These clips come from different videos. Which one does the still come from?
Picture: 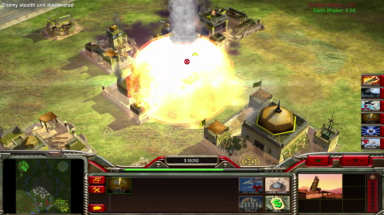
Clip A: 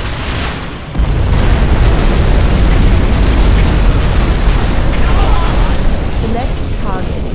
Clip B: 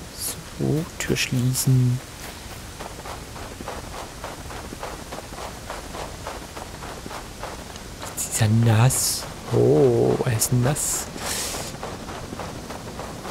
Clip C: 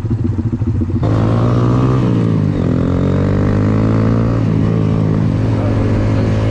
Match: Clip A